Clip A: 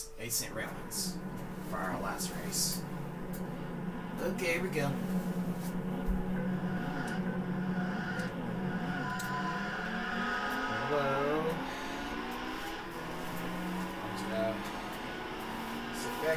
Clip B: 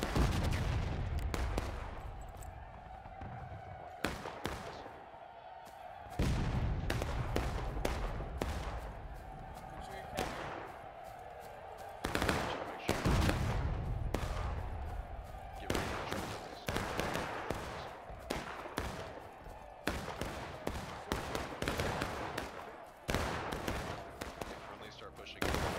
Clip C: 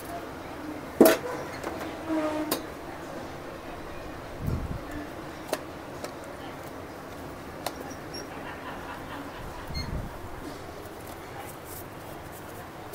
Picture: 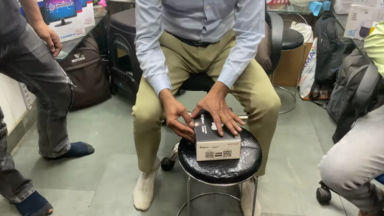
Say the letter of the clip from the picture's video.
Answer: C